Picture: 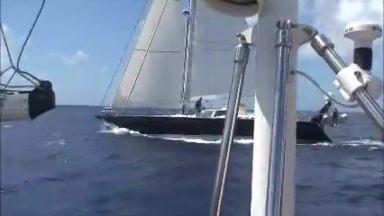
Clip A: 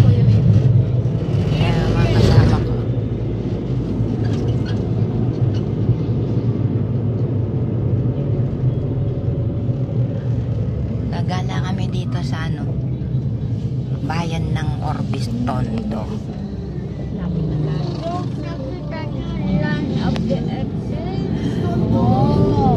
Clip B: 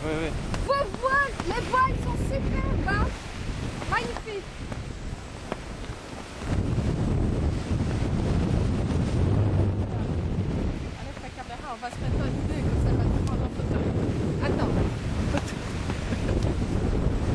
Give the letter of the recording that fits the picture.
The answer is B